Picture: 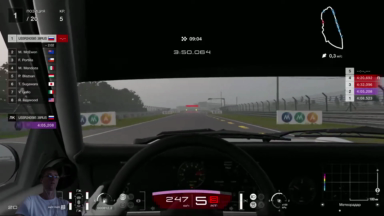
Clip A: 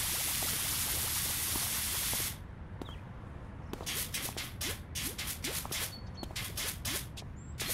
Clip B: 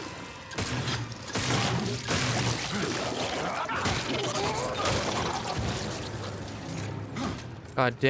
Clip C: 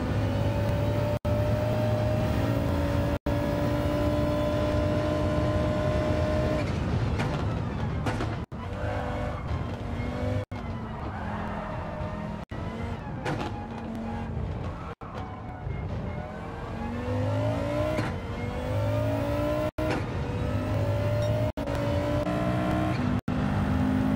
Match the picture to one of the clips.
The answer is C